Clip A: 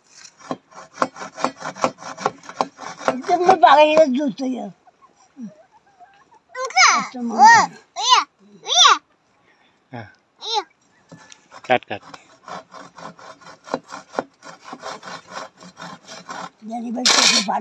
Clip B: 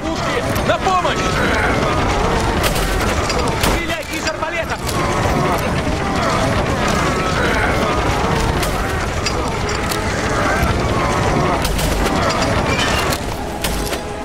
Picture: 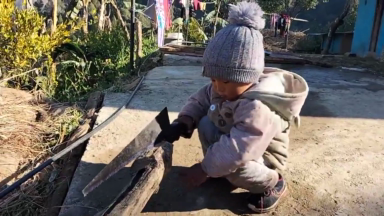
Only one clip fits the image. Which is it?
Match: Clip A